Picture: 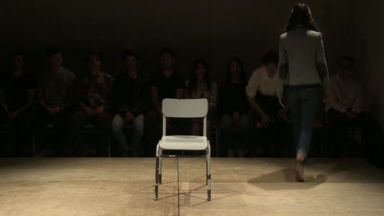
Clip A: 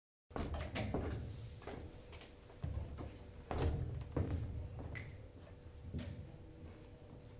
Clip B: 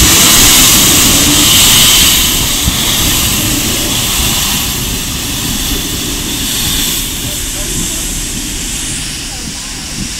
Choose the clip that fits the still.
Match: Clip A